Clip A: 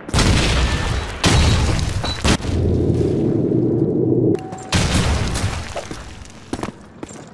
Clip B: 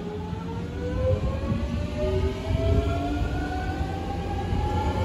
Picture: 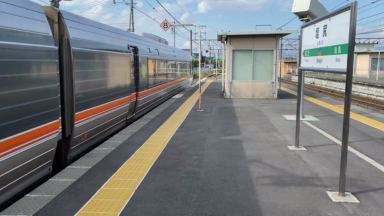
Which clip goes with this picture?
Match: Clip B